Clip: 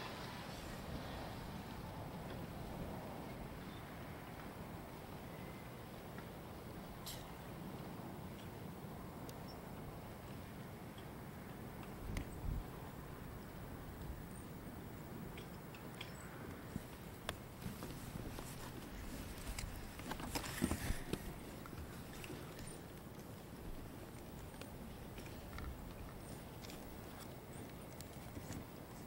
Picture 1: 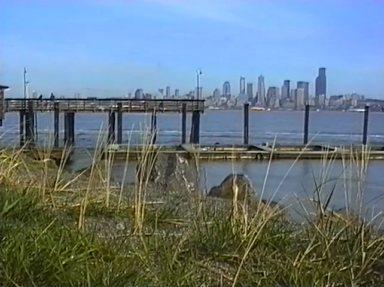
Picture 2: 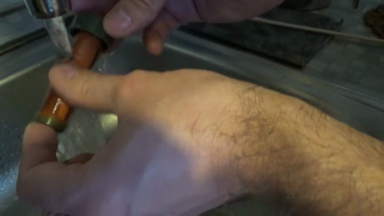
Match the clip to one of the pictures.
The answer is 1